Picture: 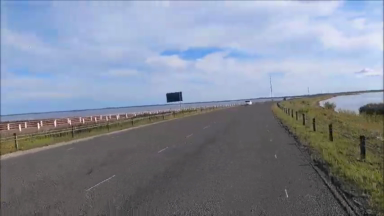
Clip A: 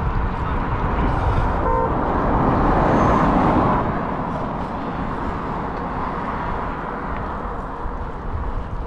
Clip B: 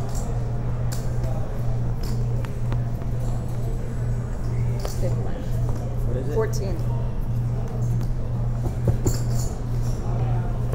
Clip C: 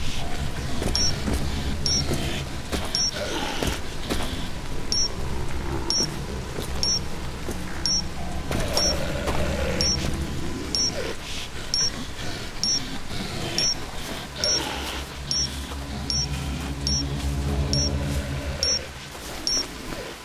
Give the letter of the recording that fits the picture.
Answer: A